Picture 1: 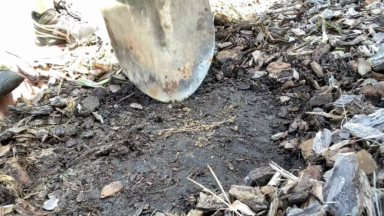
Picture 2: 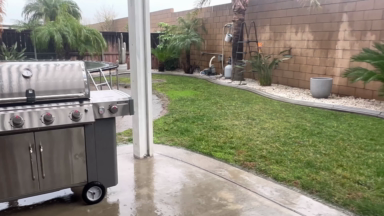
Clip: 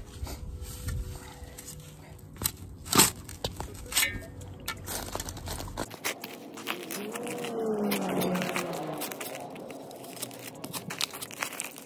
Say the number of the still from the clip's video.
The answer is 1